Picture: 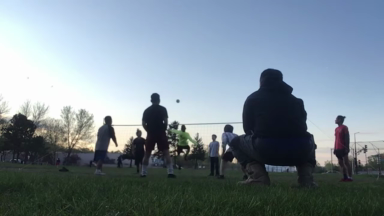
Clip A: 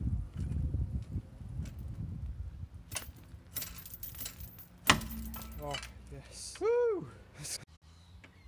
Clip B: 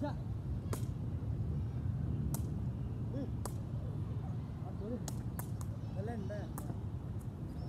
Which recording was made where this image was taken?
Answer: B